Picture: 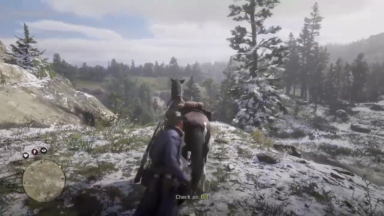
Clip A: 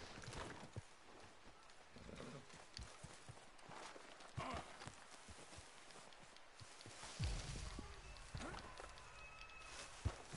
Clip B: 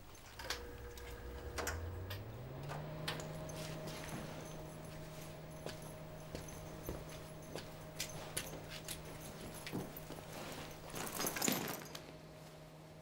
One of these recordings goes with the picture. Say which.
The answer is A